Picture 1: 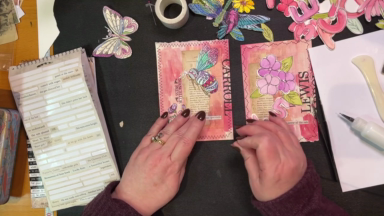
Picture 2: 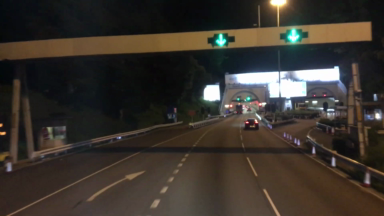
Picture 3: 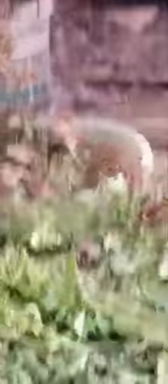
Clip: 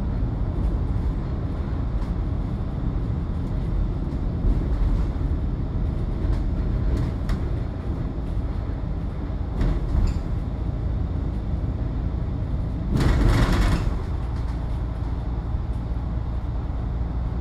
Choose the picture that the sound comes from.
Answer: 2